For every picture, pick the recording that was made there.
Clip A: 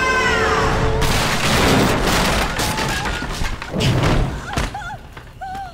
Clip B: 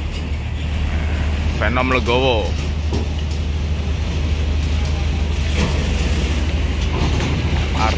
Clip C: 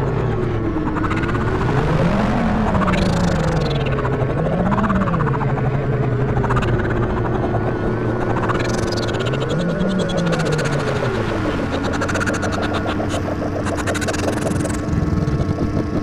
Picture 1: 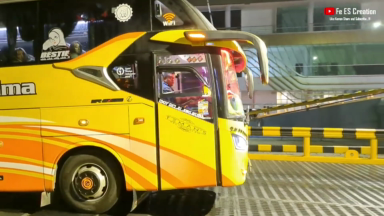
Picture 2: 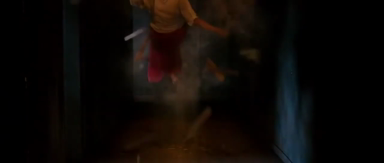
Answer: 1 B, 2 A